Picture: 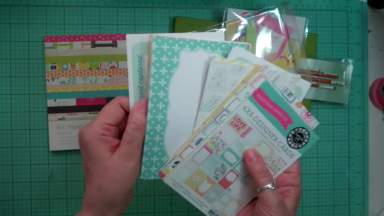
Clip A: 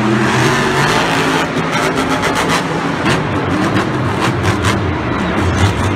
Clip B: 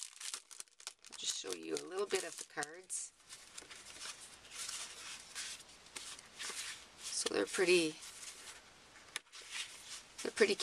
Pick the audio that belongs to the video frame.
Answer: B